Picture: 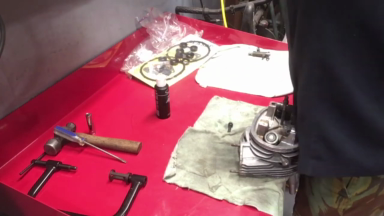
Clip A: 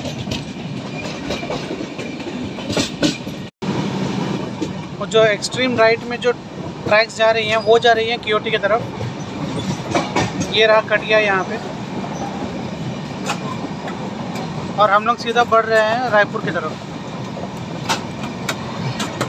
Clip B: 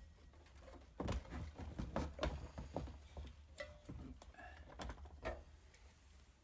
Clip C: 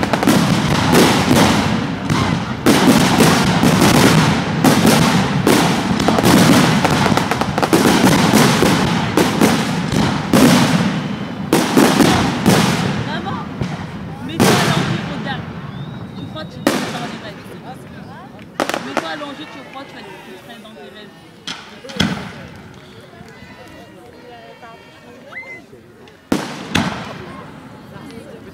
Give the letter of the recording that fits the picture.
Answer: B